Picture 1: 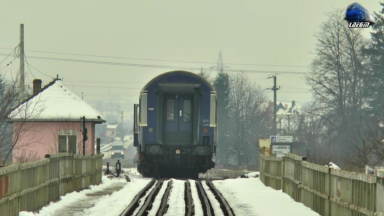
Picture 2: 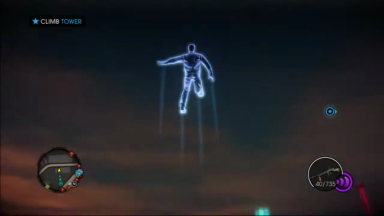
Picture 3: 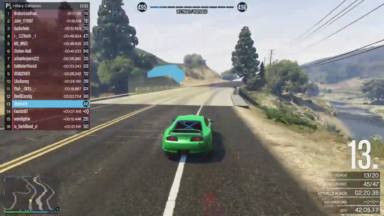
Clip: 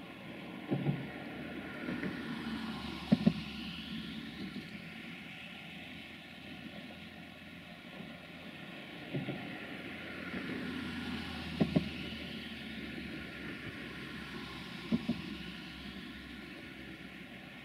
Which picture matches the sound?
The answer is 1